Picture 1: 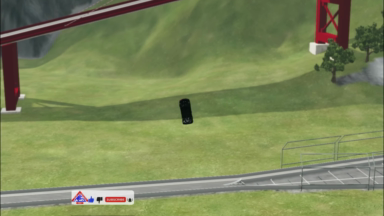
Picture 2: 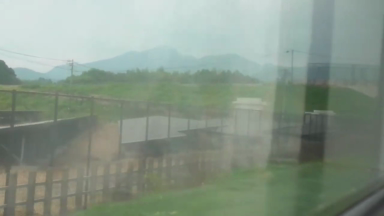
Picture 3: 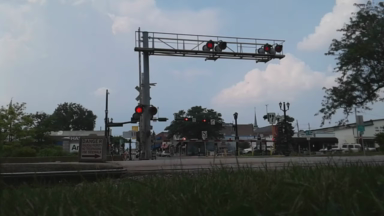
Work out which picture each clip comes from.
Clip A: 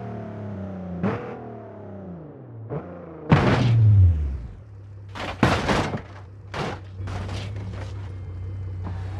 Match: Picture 1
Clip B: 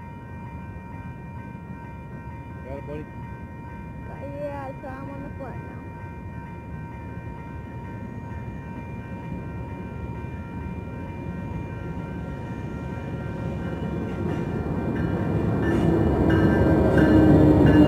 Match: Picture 3